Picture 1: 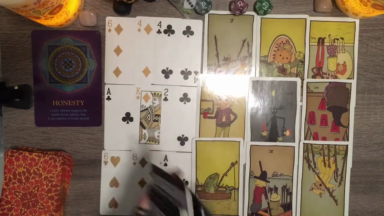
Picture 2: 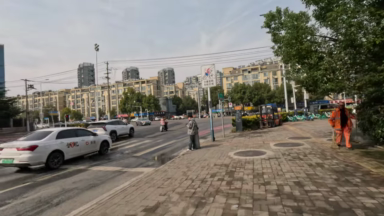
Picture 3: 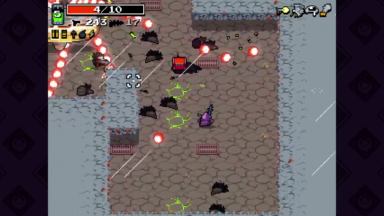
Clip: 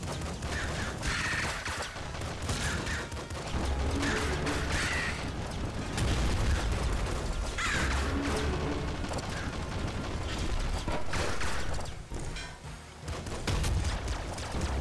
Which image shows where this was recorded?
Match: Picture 3